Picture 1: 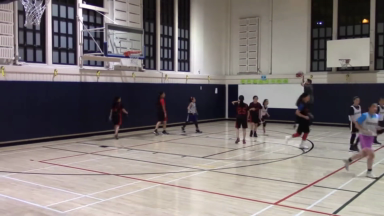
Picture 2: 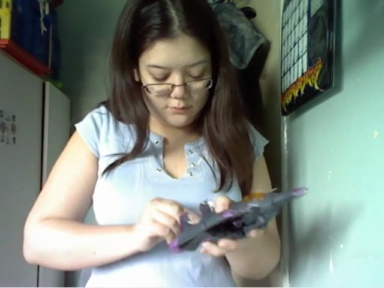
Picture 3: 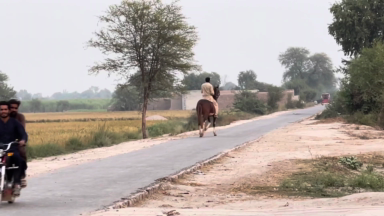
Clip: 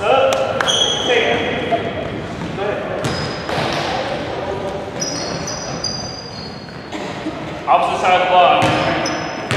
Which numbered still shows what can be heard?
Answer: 1